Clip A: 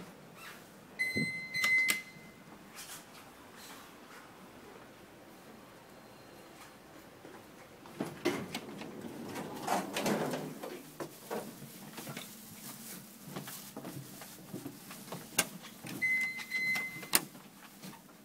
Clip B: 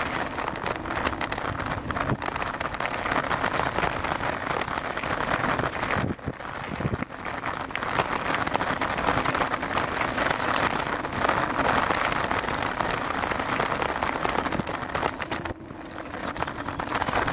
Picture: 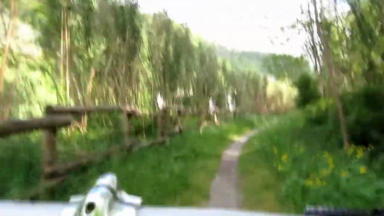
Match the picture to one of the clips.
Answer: B